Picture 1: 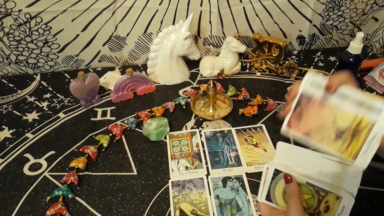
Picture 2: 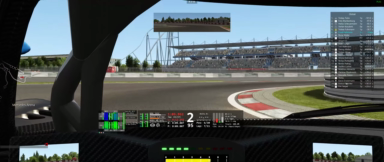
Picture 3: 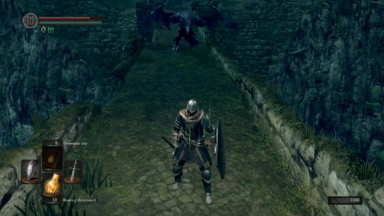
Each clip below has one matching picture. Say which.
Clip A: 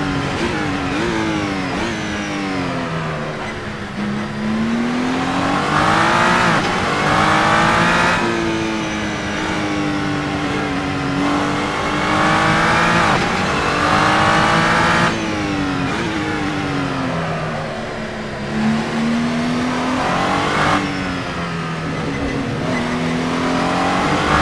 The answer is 2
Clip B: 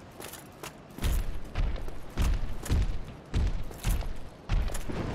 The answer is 3